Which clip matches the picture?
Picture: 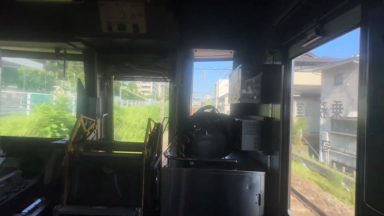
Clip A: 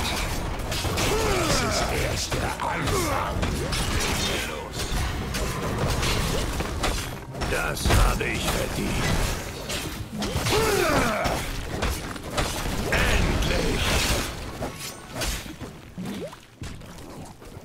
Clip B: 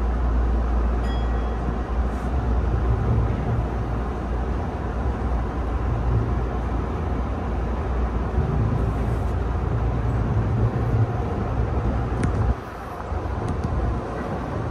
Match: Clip B